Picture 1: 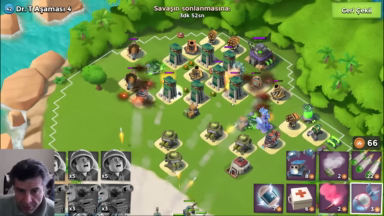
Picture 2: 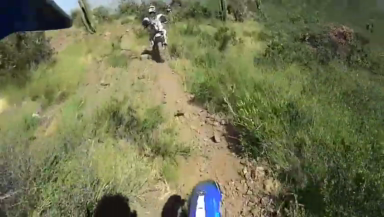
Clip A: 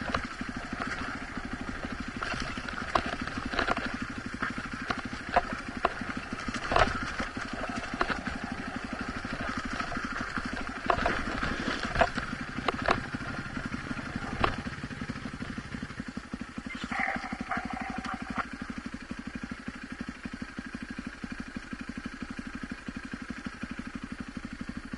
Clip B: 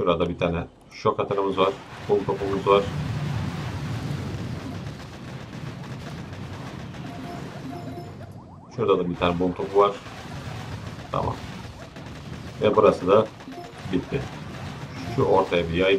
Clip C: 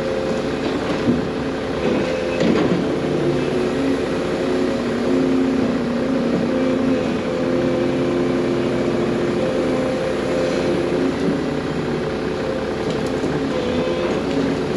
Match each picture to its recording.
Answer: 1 B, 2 A